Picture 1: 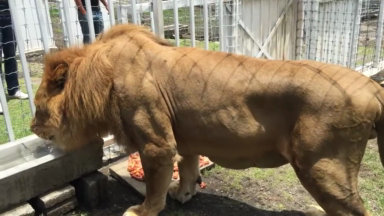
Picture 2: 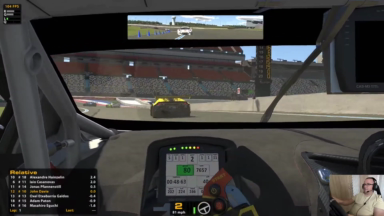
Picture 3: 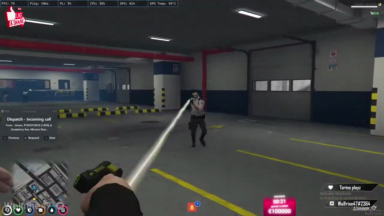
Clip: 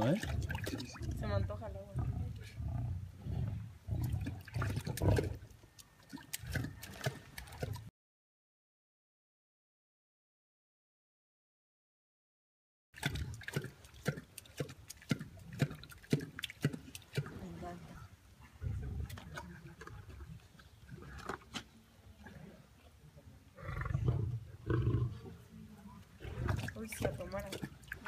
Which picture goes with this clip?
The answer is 1